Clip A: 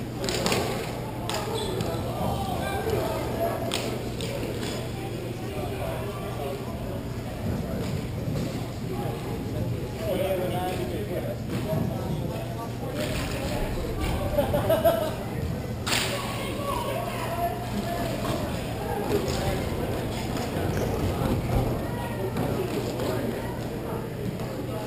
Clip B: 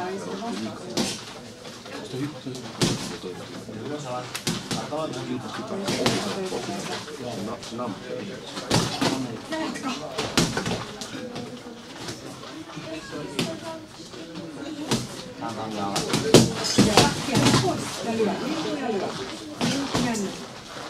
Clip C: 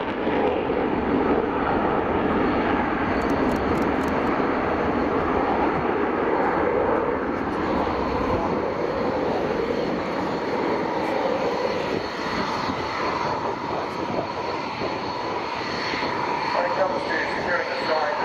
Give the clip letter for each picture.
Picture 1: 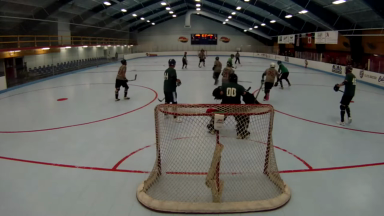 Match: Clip A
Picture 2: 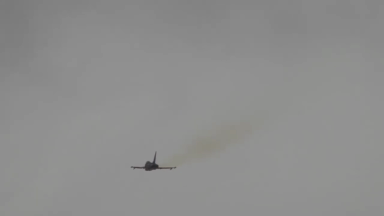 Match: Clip C